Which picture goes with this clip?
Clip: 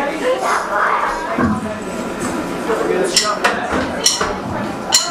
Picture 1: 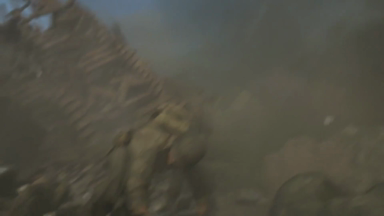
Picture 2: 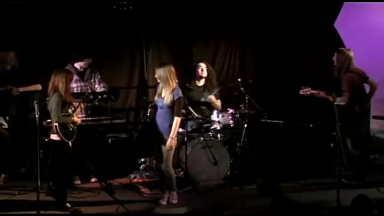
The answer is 2